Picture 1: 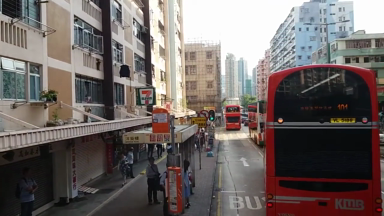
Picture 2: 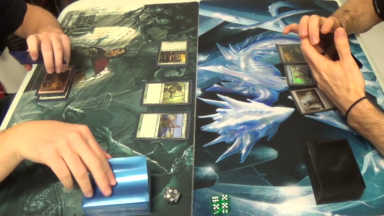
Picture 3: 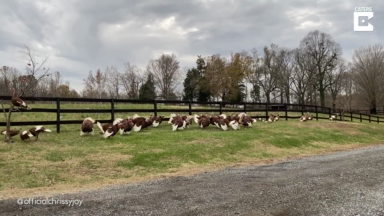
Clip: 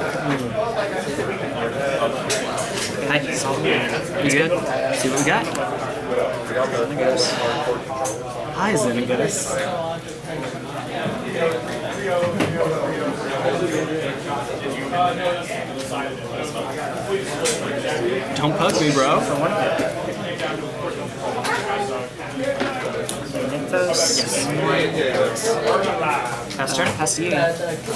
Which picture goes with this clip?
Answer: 2